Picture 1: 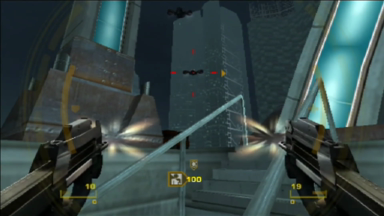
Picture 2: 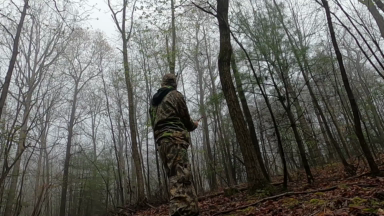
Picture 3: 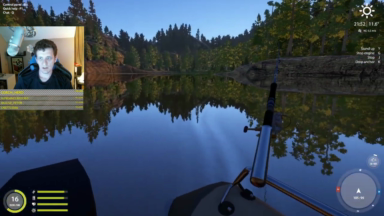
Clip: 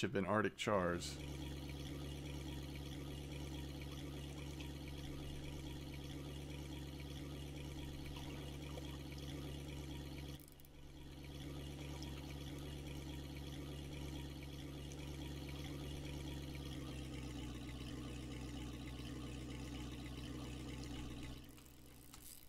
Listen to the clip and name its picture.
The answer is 3